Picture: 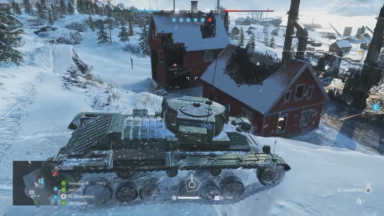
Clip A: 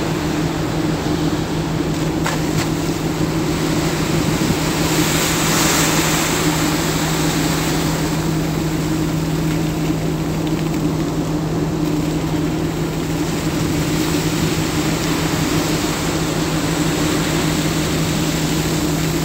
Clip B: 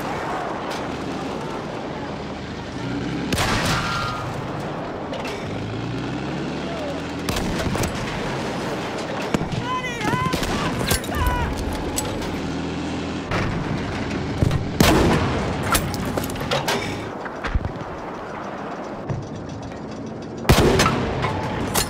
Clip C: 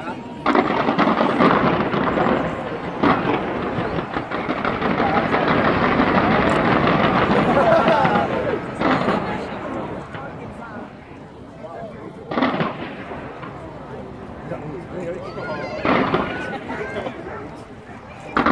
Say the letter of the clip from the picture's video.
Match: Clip B